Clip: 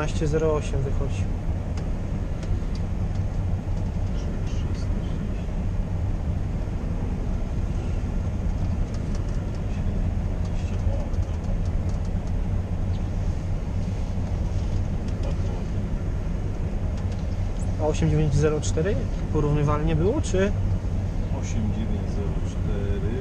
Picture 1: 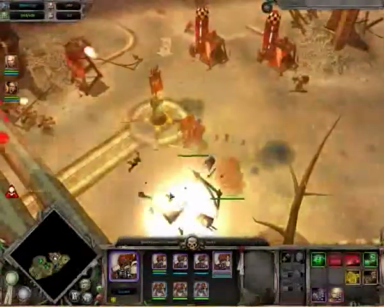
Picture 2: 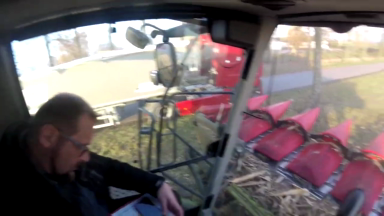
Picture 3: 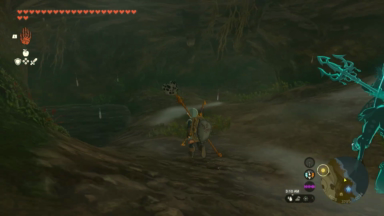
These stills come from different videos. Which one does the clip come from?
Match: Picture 2